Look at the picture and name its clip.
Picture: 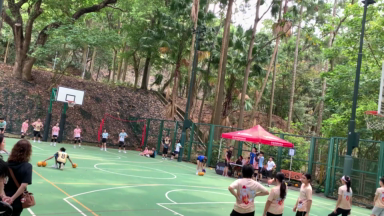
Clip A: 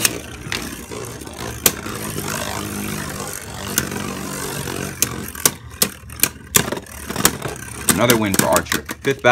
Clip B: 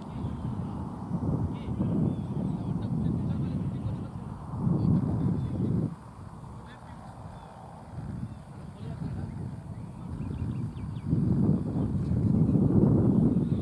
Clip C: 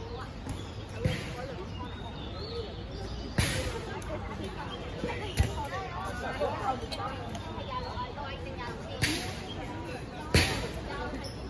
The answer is C